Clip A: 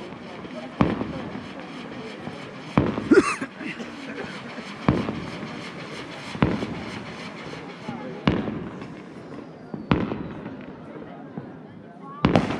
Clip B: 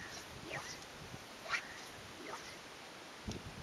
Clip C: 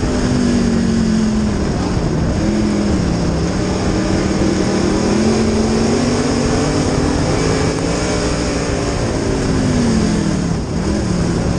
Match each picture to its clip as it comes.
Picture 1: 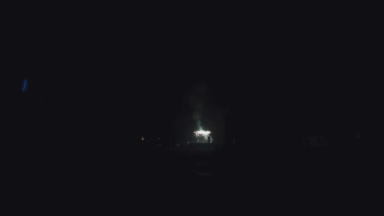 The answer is A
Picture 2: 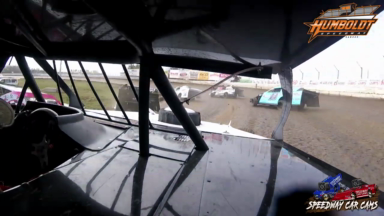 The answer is C